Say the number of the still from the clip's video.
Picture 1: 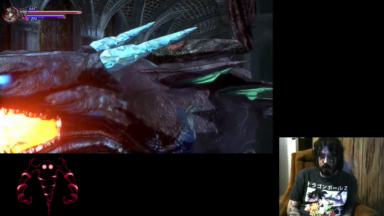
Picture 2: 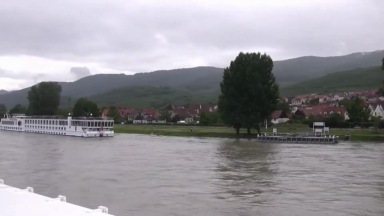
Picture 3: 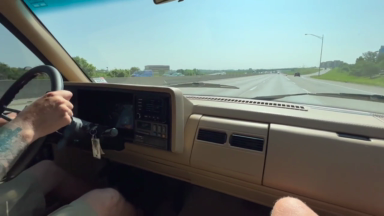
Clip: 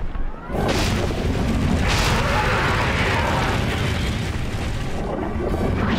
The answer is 1